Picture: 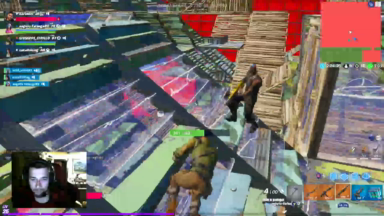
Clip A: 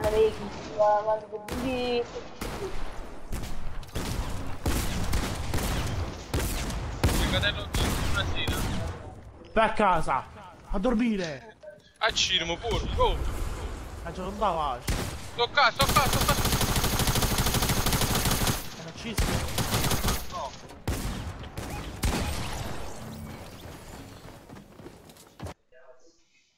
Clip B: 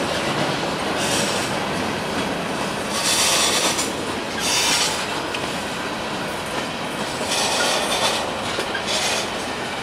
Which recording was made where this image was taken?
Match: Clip A